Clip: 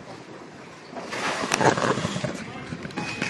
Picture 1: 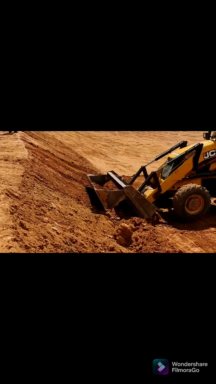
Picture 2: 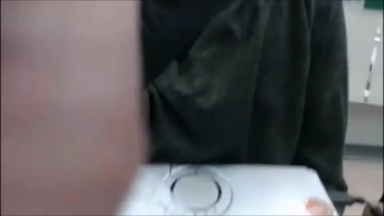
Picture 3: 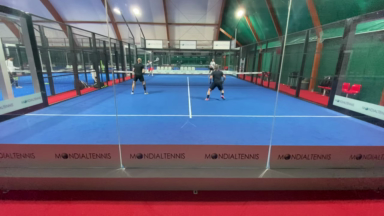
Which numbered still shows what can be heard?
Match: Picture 2